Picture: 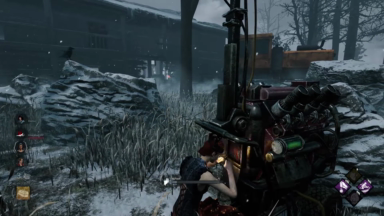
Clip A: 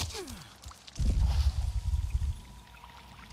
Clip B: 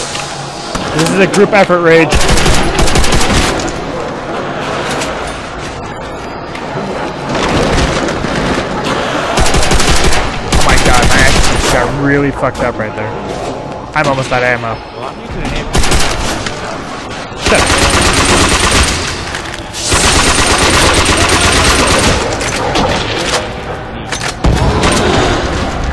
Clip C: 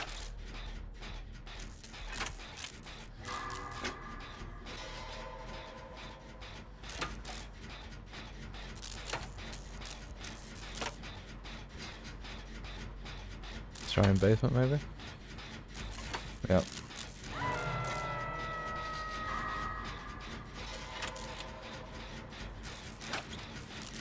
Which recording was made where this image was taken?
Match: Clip C